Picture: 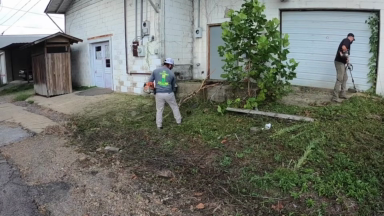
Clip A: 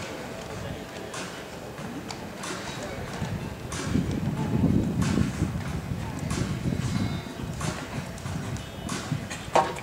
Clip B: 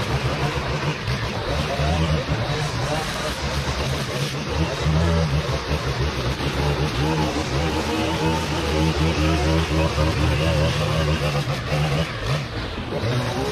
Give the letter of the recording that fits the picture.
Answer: B